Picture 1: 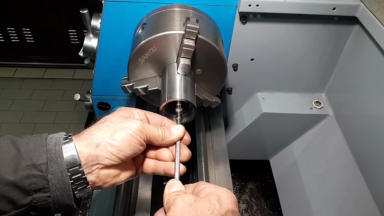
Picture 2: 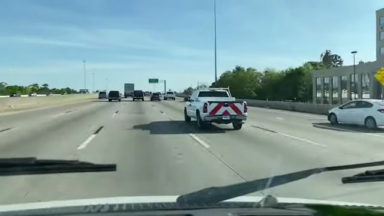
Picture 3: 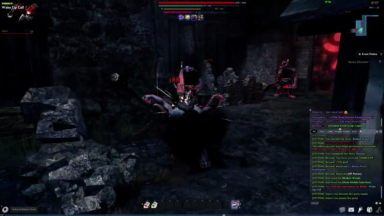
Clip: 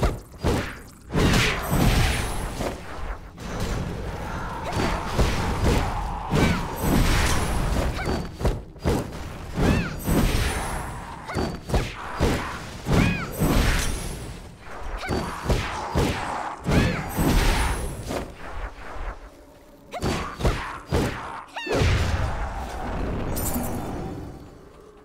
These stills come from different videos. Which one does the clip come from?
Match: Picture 3